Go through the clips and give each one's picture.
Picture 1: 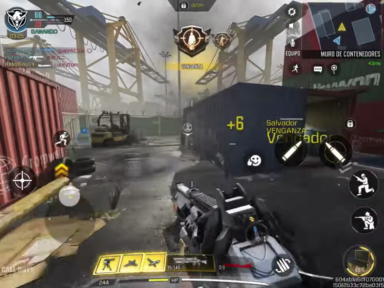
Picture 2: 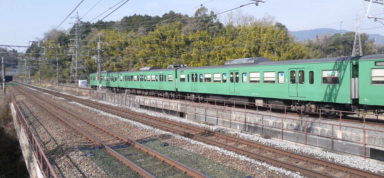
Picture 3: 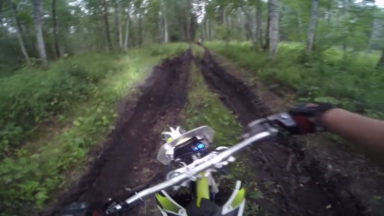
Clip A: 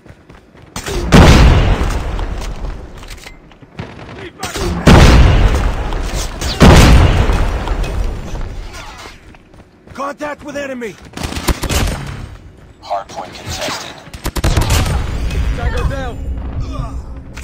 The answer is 1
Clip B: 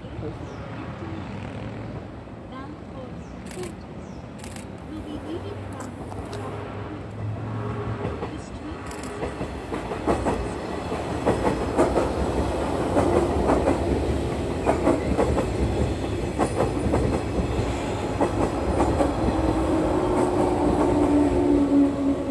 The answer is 2